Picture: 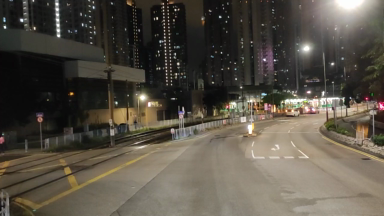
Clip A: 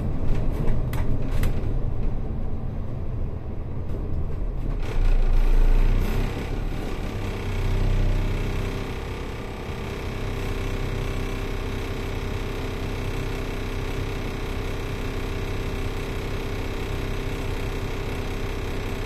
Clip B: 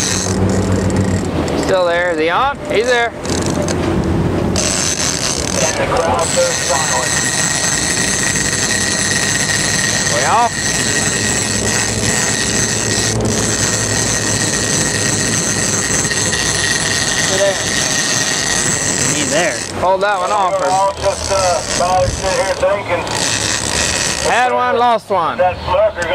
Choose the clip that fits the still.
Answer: A